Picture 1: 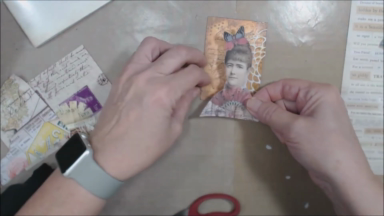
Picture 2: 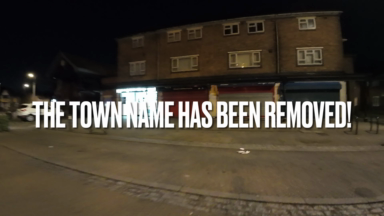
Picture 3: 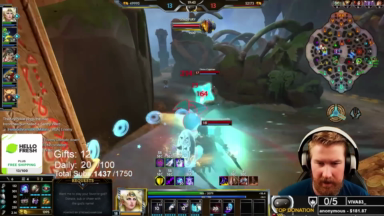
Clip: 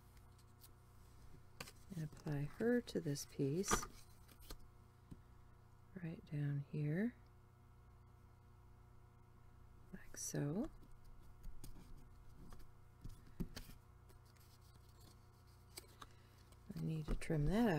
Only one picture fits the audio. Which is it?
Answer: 1